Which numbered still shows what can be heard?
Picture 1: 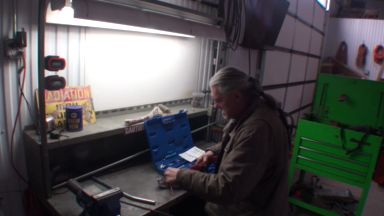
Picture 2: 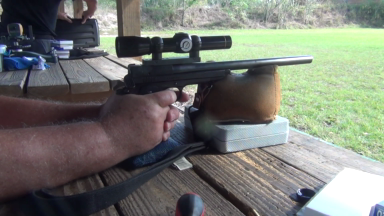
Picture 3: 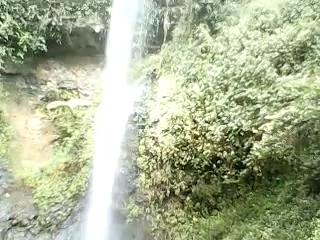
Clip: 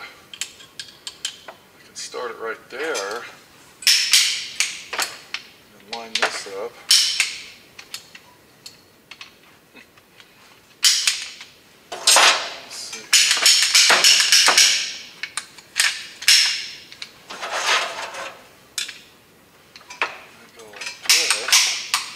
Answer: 1